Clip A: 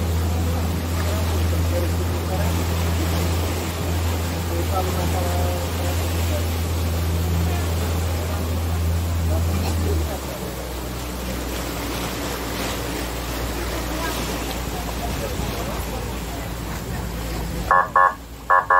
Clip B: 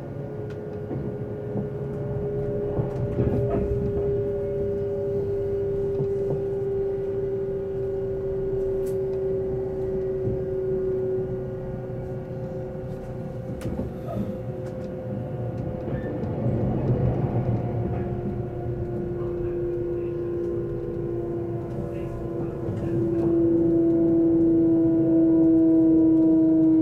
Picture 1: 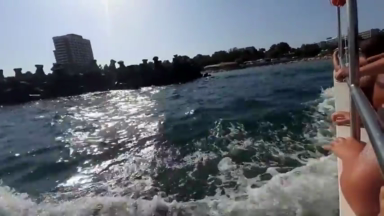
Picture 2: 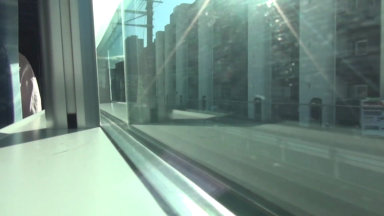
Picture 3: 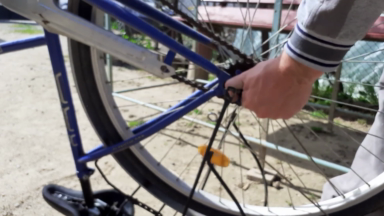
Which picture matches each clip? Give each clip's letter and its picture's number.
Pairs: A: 1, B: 2